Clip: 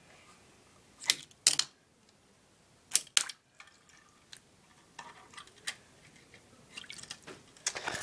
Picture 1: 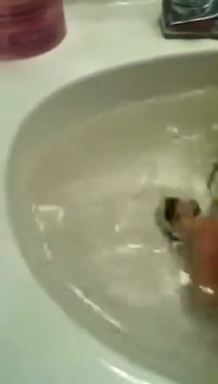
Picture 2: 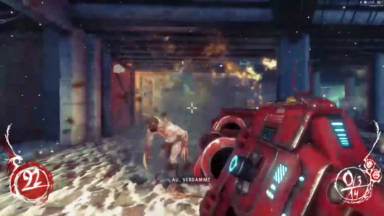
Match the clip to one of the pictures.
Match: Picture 1